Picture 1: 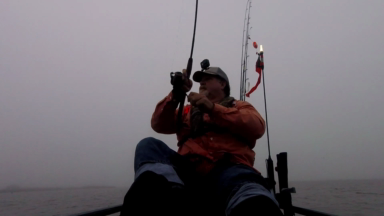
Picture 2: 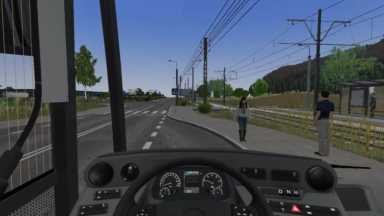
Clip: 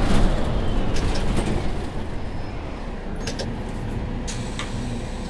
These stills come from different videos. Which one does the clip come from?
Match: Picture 2